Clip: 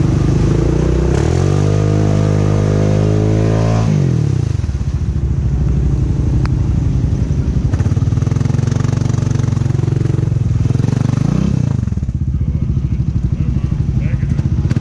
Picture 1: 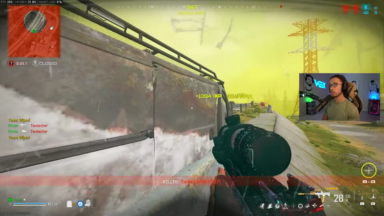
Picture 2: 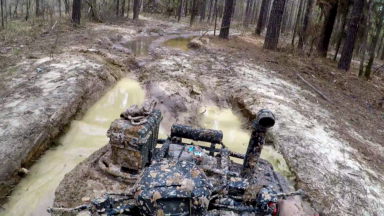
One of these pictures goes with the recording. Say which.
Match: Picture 2